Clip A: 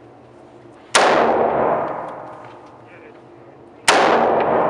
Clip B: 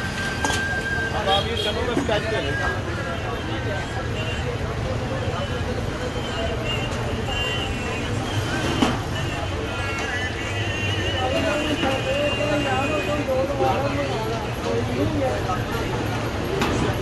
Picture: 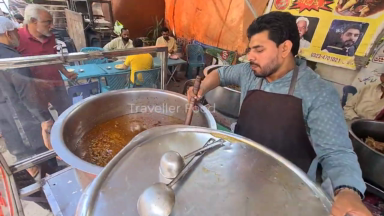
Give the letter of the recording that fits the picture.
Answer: B